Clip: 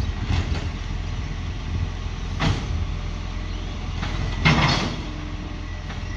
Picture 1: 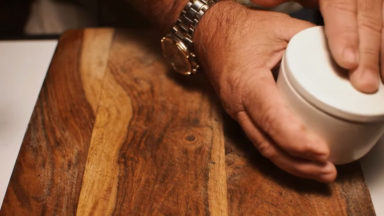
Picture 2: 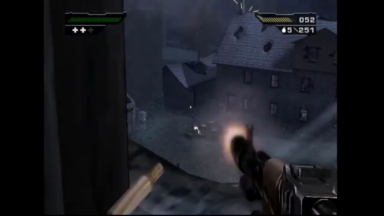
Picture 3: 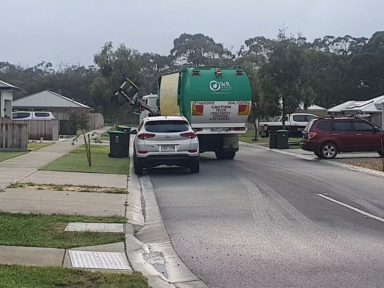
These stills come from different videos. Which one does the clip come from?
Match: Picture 3